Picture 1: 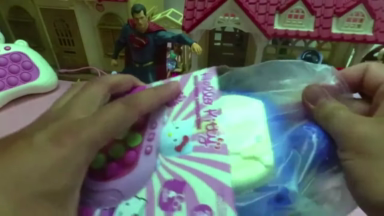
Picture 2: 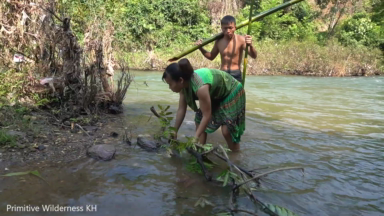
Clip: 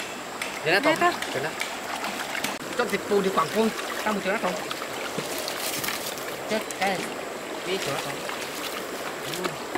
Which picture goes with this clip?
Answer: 2